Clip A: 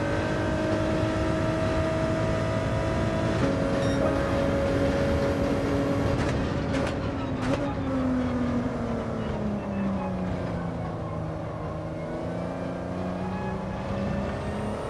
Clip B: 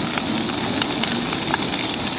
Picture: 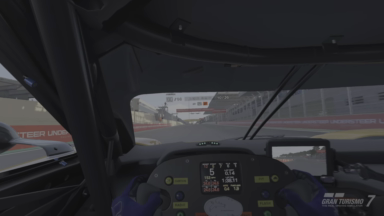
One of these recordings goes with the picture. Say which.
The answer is A